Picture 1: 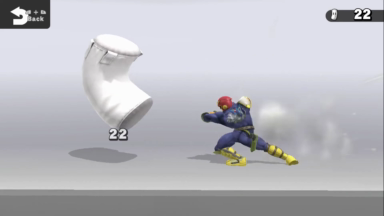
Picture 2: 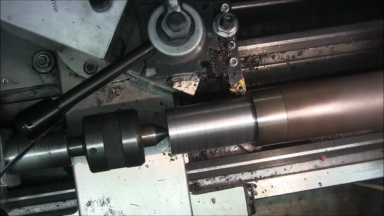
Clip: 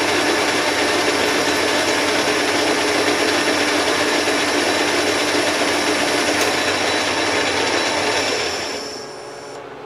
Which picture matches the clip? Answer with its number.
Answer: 2